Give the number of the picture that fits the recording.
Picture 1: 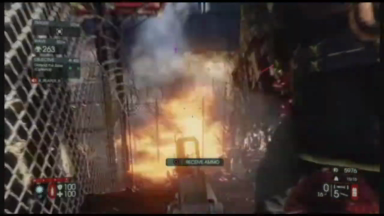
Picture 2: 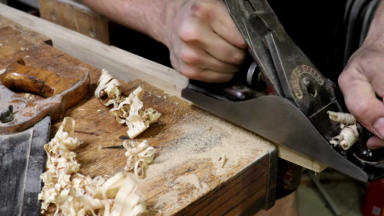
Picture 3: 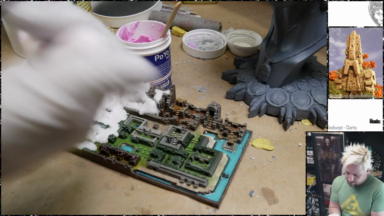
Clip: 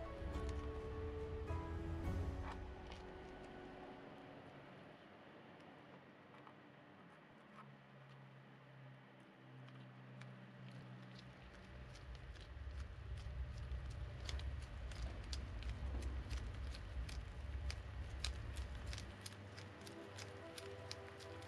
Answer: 3